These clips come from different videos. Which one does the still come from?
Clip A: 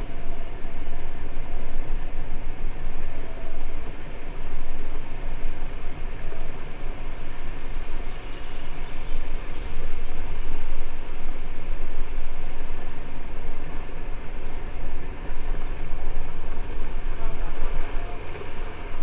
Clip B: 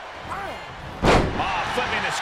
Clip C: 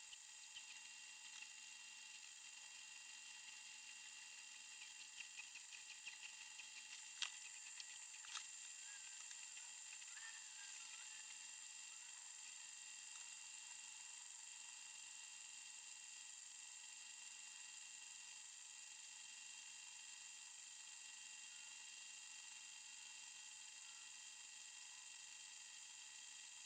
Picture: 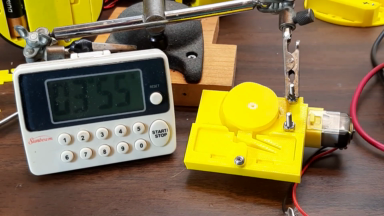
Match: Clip C